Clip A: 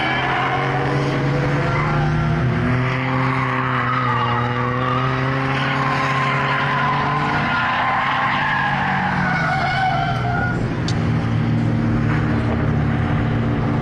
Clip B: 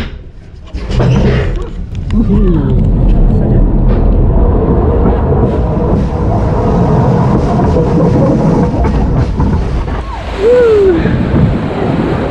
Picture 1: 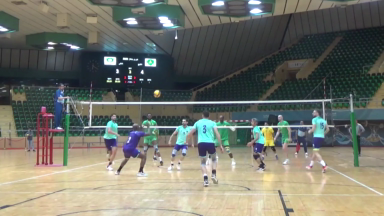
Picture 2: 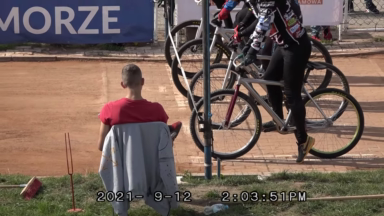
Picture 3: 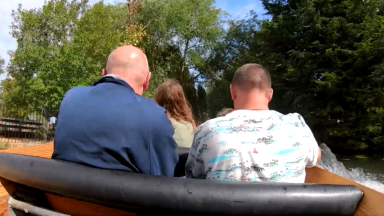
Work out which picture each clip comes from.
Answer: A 2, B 3